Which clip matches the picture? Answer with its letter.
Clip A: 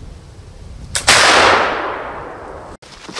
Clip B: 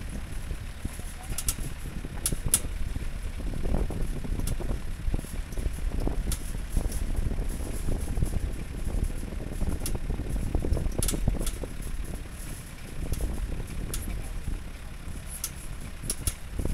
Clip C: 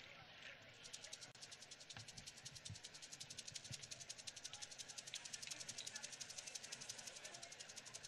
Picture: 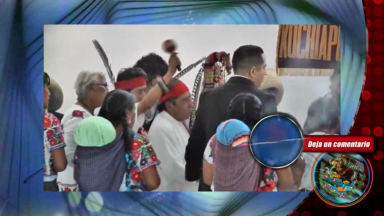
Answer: C